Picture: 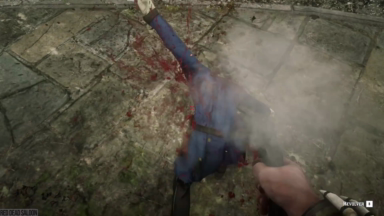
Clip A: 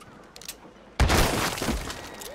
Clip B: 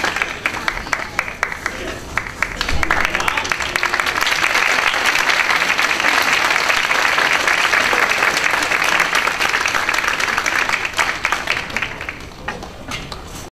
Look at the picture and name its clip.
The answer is A